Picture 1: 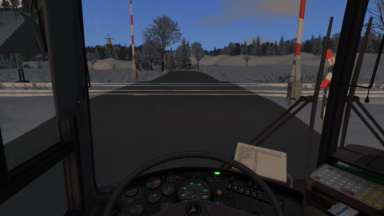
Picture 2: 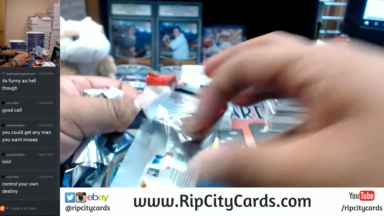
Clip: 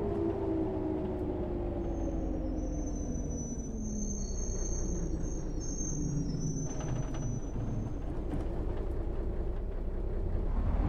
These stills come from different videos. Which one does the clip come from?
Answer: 1